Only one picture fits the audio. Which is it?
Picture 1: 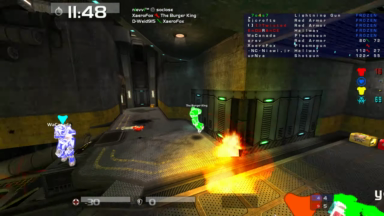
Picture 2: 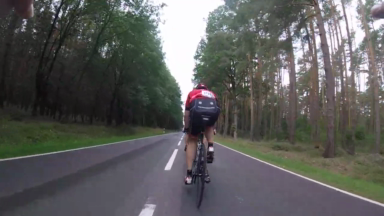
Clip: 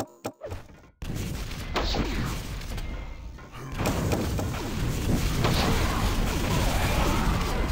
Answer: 1